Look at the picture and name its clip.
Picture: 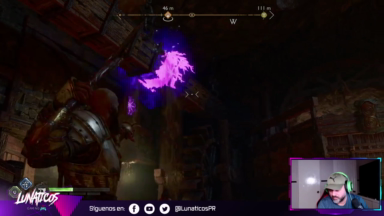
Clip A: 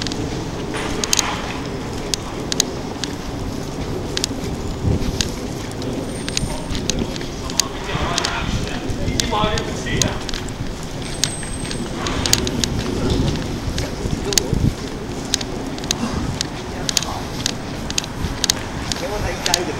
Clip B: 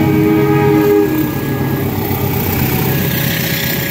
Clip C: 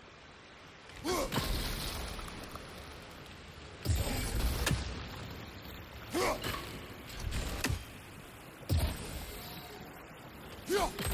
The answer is C